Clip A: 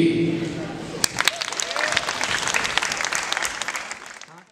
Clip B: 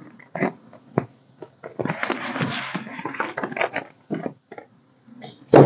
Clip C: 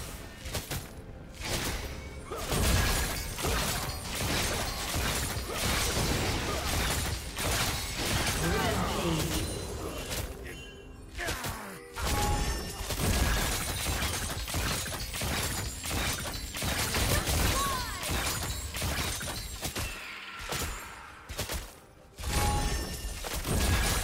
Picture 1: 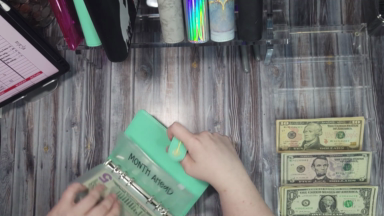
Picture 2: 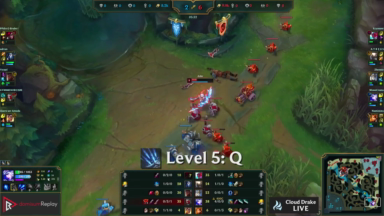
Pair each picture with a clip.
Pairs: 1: B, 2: C